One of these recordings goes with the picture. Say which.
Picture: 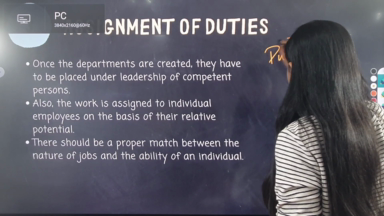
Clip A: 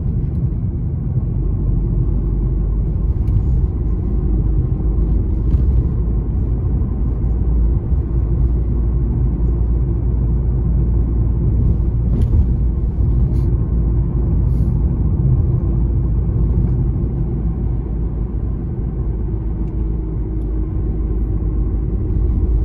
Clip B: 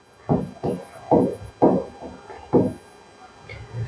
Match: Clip B